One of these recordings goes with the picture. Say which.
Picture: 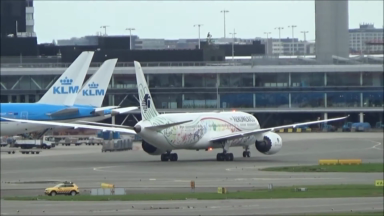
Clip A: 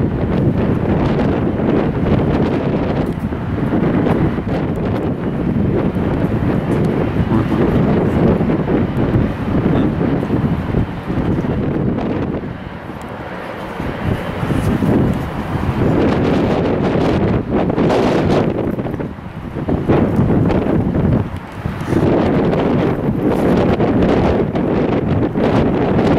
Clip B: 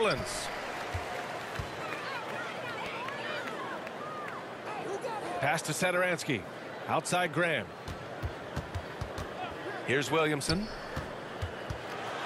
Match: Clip A